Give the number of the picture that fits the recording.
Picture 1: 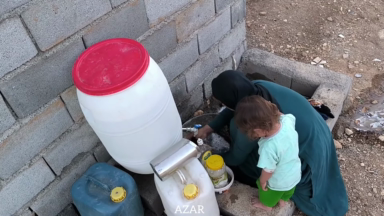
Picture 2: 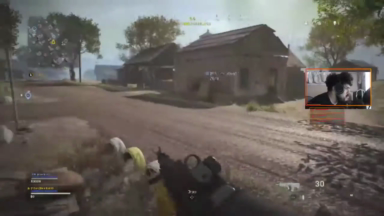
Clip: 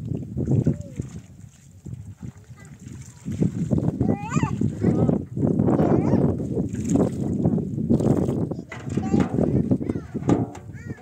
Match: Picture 1